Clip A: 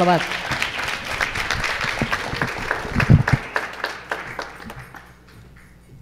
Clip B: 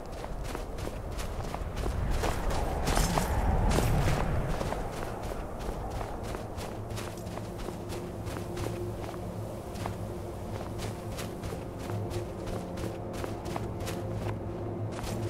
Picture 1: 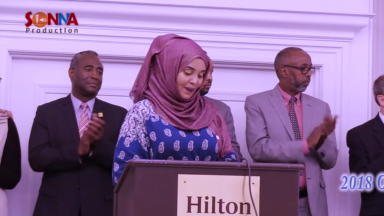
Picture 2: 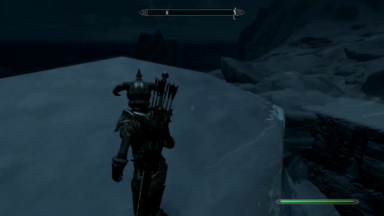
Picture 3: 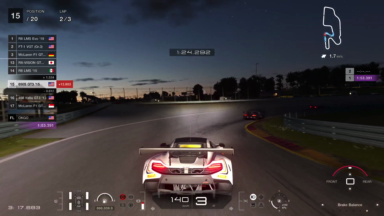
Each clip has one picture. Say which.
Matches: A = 1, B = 2